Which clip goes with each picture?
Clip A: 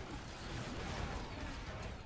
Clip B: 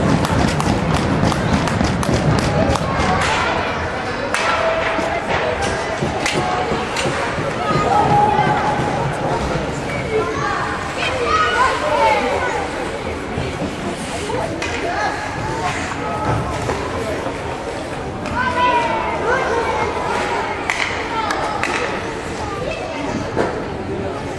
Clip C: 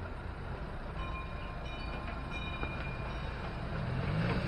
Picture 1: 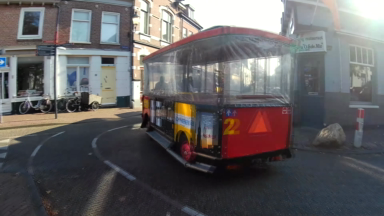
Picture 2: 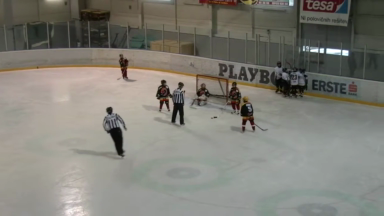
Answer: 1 C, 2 B